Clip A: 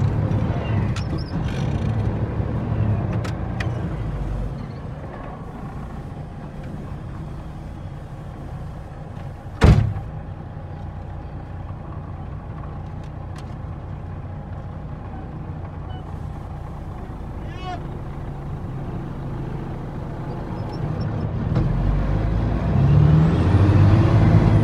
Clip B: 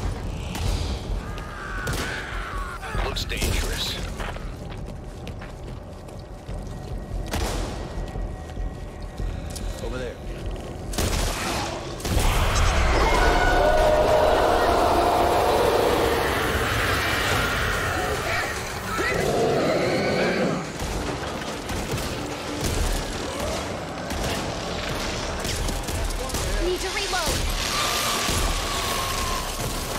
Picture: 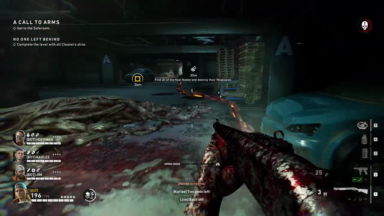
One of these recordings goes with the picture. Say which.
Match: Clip B